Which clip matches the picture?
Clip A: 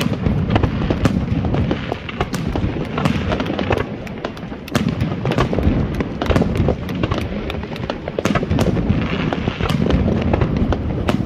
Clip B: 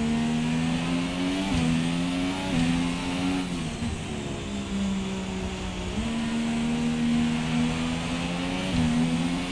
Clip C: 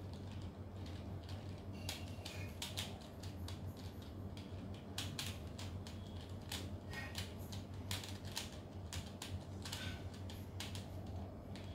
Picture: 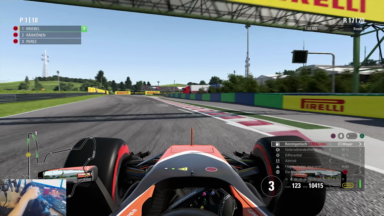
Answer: B